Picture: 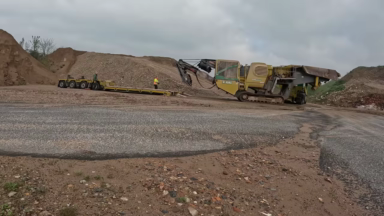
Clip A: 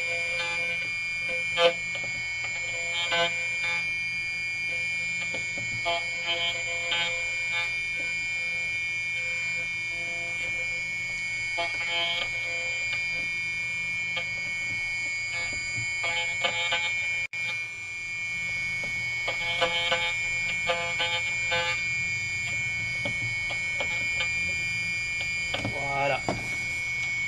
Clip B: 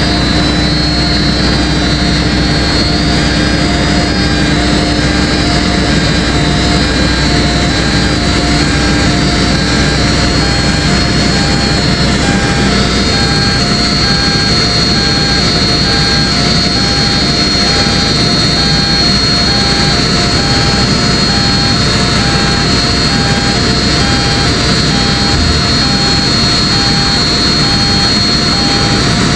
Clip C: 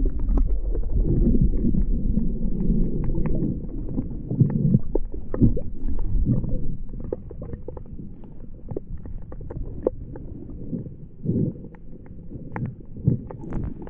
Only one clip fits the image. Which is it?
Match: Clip B